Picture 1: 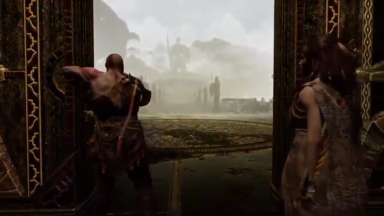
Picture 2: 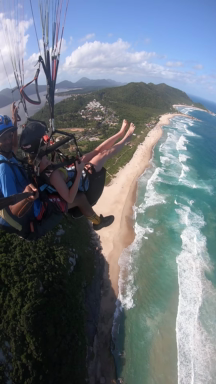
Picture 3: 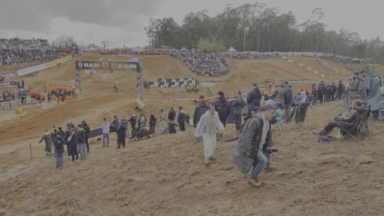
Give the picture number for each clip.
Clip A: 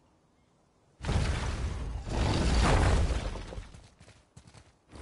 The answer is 1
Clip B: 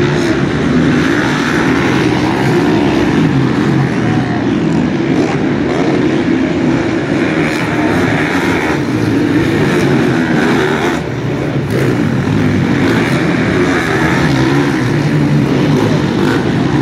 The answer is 3